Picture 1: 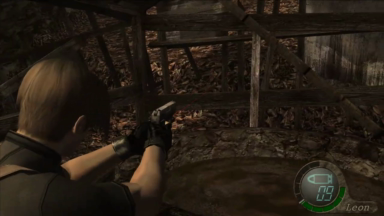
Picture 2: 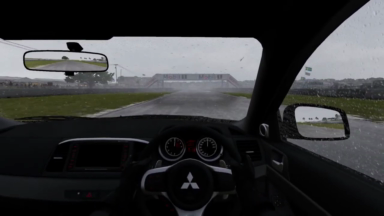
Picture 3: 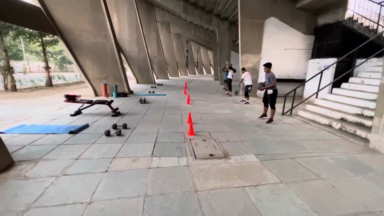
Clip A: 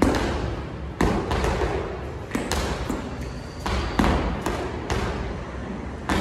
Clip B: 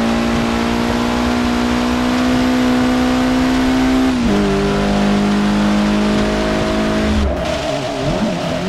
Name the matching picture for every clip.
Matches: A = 3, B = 2